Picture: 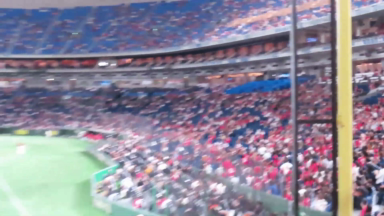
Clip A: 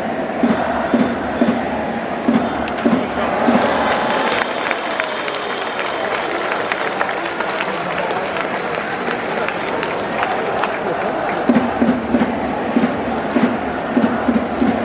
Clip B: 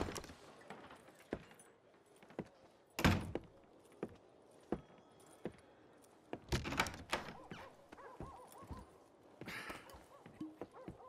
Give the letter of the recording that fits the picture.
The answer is A